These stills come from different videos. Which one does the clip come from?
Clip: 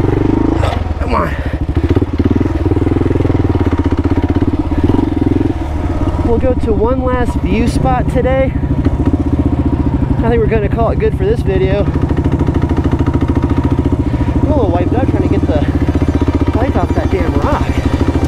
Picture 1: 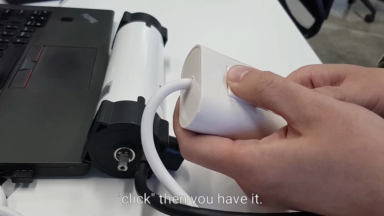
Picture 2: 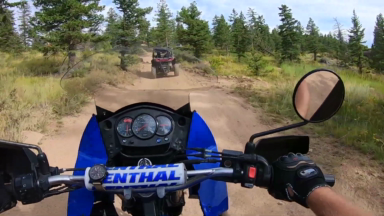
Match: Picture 2